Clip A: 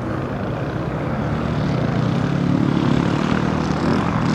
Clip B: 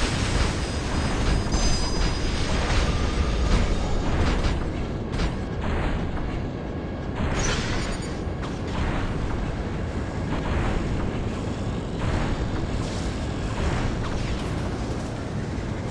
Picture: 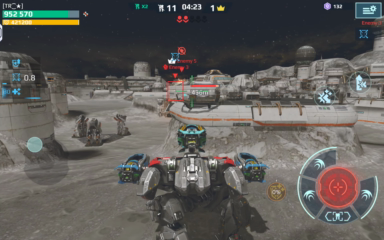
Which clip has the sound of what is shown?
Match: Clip B